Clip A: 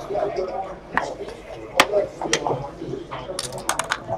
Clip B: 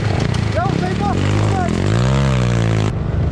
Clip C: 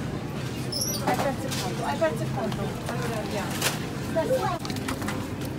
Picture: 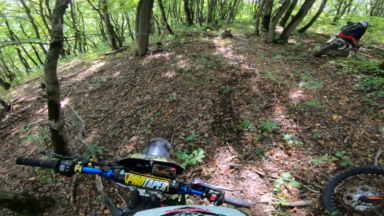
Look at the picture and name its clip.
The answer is B